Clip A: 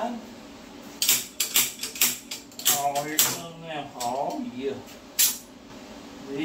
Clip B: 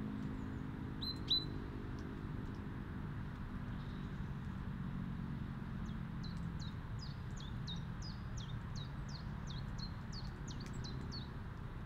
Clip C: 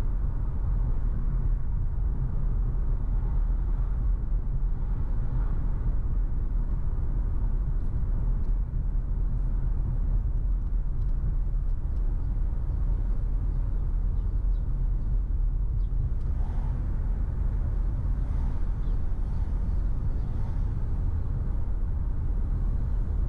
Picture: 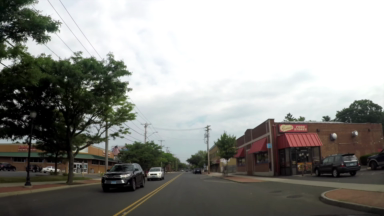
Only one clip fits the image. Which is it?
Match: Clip C